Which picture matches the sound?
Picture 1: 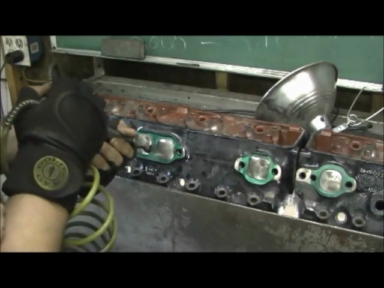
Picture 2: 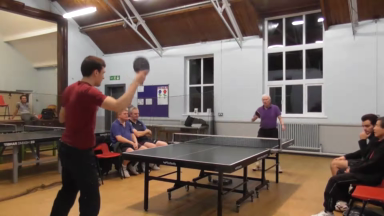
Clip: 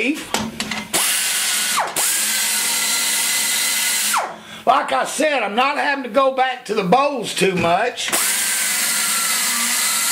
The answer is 1